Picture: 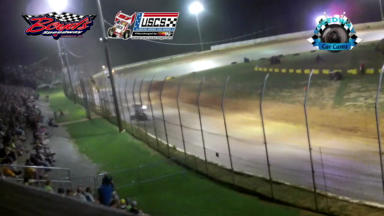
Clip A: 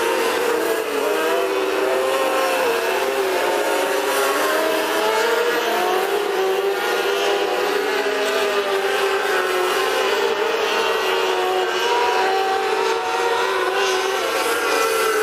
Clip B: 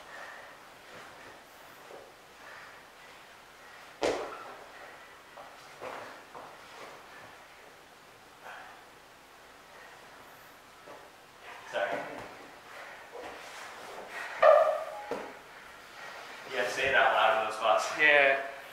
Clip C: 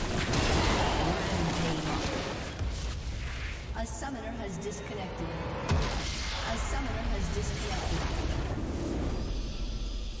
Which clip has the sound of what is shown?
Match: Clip A